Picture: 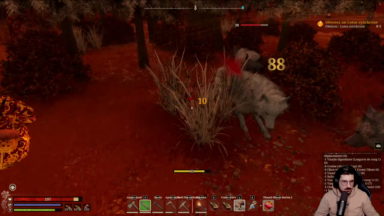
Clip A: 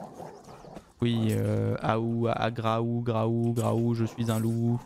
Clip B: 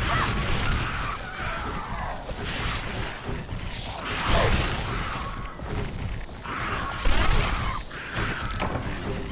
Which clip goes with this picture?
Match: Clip A